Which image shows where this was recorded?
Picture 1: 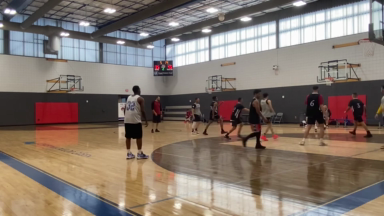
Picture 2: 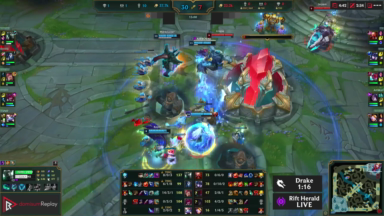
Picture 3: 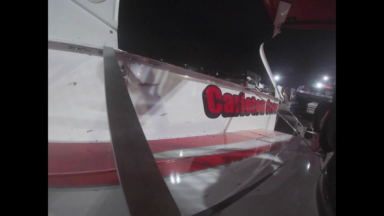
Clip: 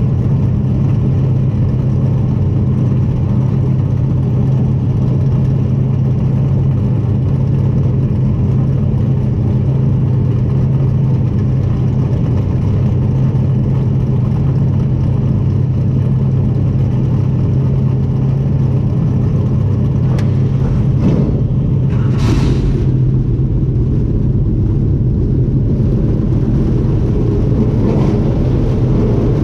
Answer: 3